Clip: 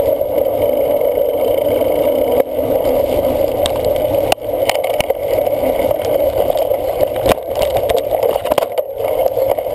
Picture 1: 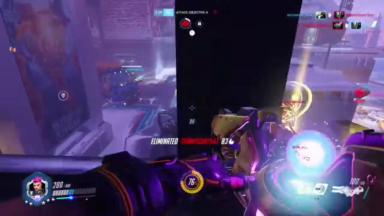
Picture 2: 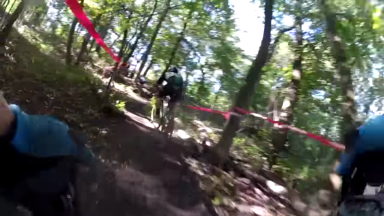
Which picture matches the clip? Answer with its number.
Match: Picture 2